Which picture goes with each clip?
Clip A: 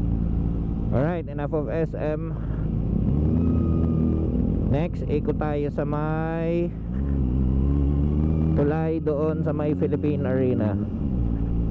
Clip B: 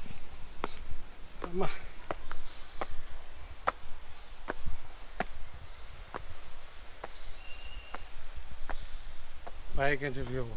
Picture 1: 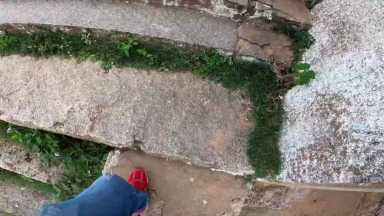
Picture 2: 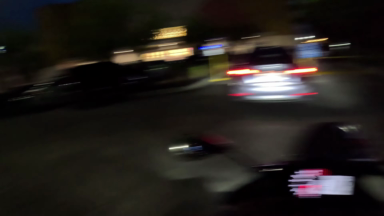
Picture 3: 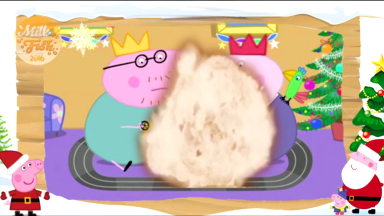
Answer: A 2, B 1